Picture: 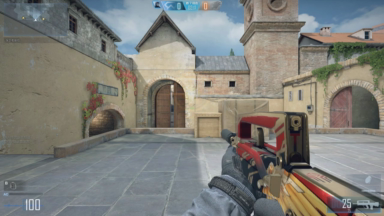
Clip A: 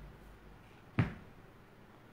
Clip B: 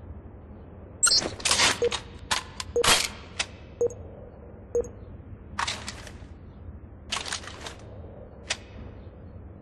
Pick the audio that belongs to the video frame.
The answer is B